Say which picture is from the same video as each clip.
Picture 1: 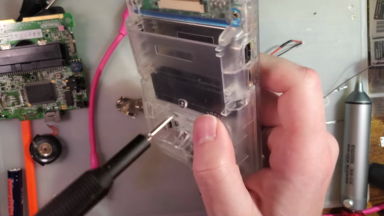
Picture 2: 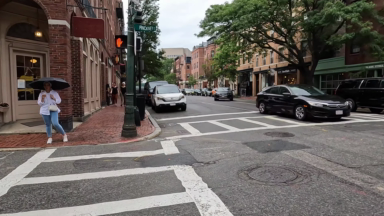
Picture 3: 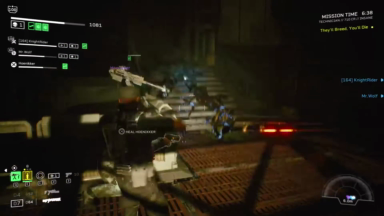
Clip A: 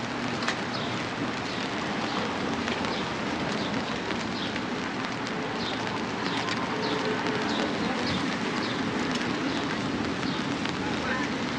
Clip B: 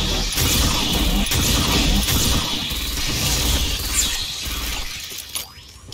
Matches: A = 2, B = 3